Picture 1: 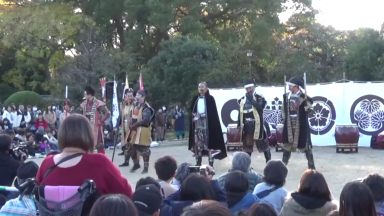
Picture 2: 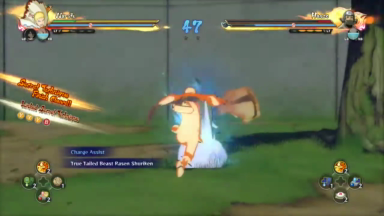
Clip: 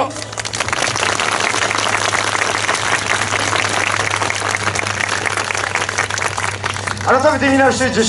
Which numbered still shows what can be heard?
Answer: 1